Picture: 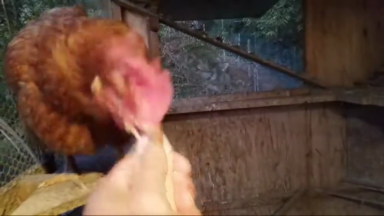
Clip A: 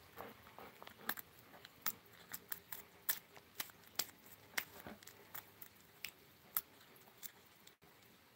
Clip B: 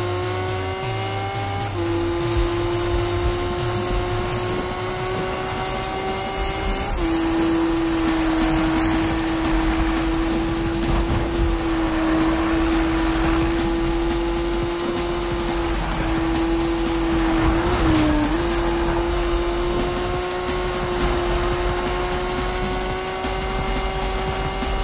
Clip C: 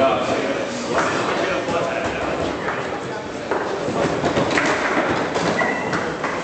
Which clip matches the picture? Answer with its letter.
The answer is A